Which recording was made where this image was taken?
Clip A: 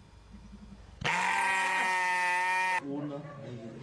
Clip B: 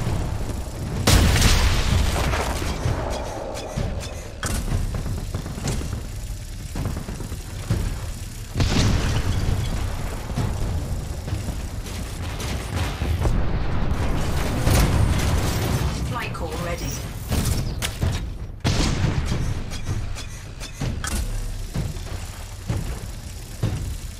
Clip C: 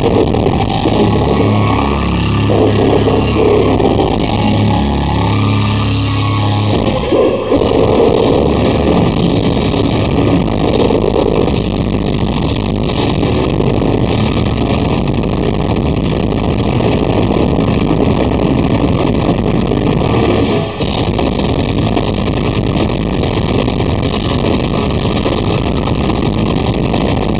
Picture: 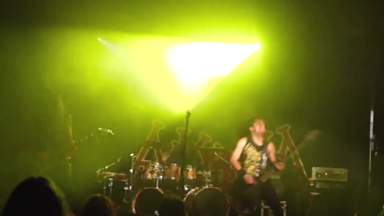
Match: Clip C